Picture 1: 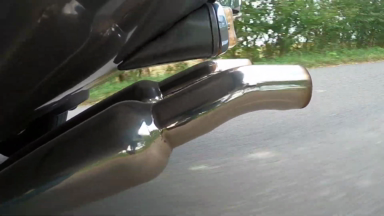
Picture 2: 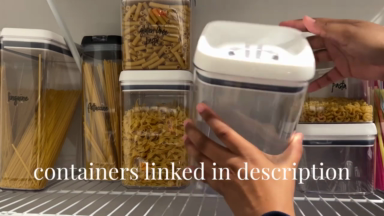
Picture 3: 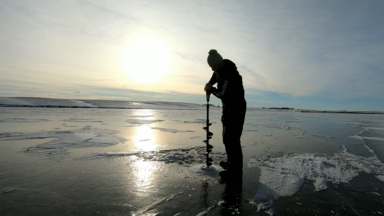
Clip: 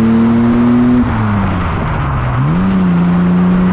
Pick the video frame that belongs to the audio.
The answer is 1